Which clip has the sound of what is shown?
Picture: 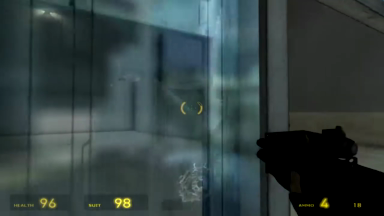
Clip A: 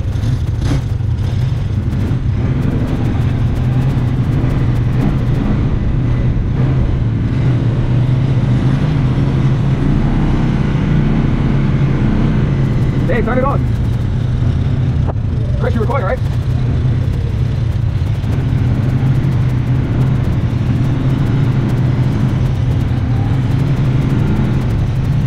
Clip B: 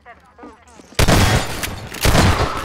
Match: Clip B